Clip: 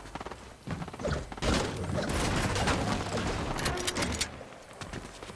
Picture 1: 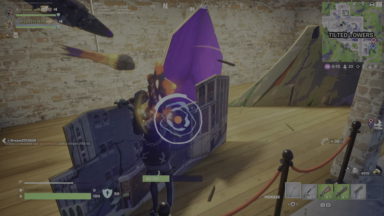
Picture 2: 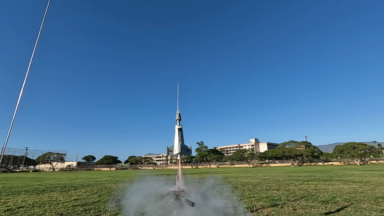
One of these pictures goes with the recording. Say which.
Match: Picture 1